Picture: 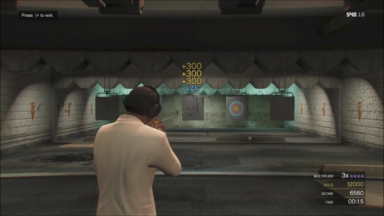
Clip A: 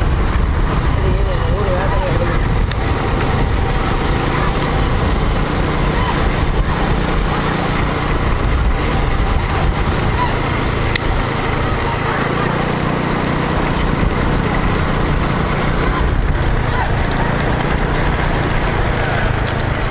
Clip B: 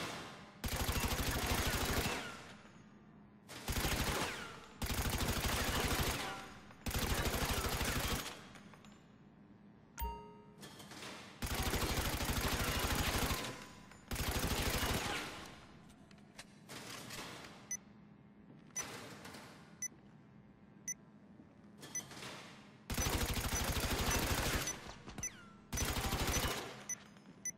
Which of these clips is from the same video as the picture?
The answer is B